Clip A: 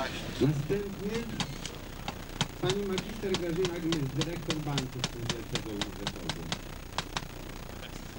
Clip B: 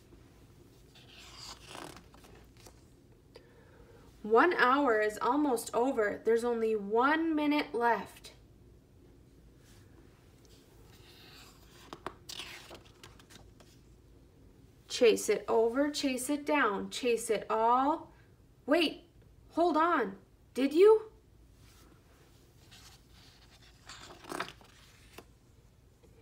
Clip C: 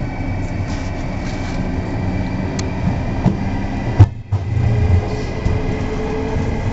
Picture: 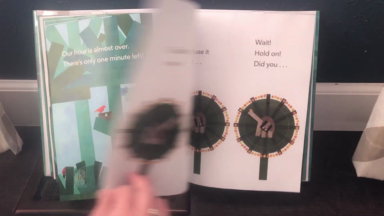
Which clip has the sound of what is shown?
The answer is B